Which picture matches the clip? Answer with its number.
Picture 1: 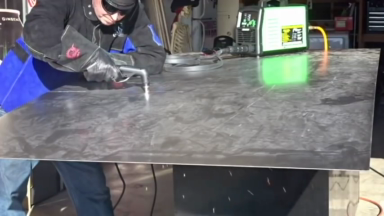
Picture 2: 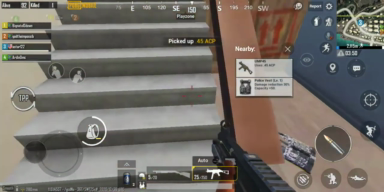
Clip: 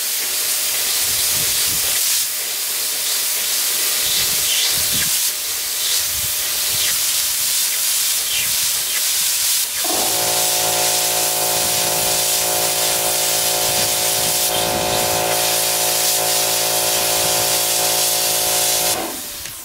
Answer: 1